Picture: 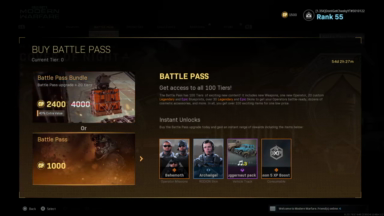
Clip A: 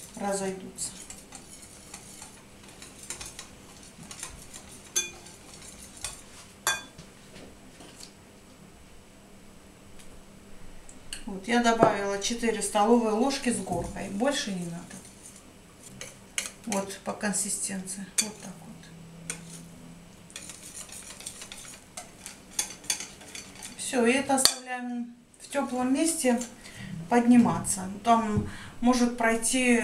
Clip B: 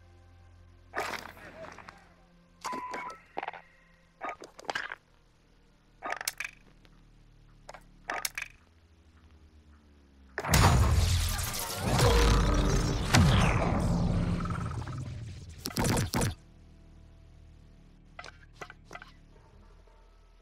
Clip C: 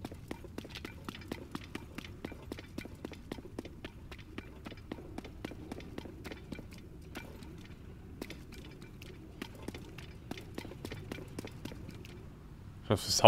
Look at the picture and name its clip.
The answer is B